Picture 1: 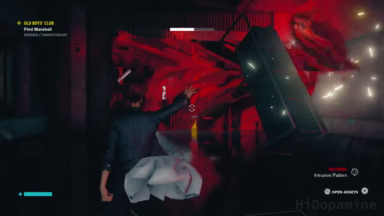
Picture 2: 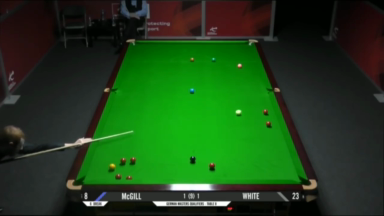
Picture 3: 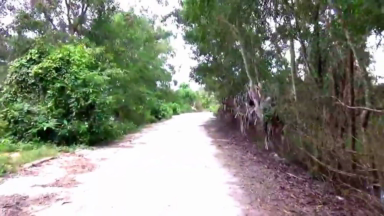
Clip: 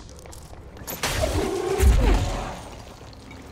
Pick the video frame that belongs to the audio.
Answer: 1